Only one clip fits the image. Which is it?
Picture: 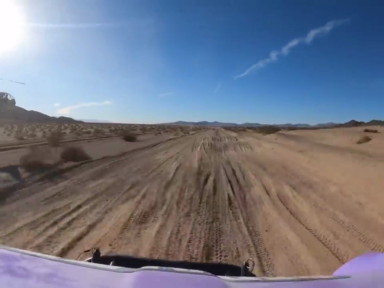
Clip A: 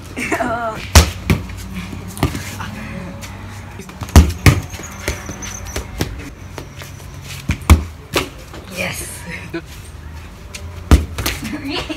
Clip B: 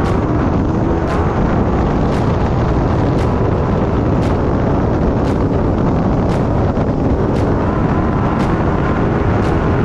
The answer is B